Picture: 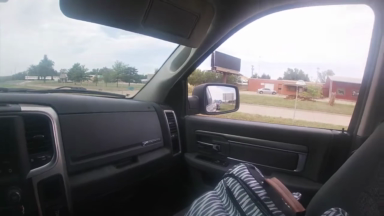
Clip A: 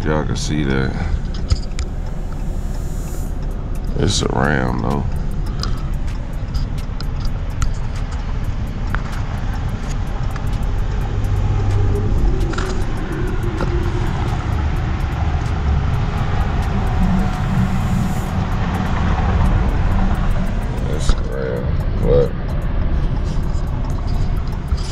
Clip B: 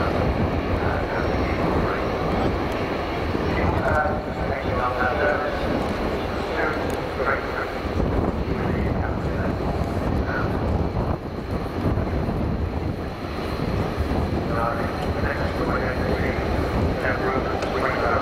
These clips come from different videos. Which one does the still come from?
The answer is A